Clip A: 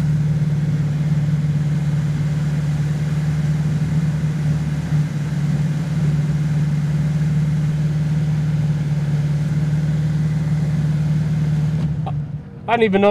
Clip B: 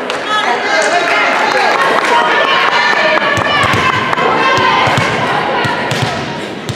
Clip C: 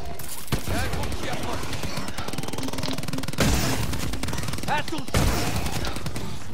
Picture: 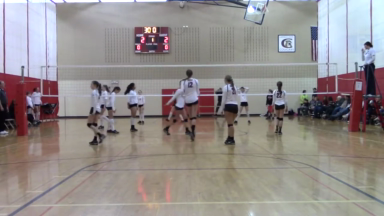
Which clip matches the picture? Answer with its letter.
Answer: B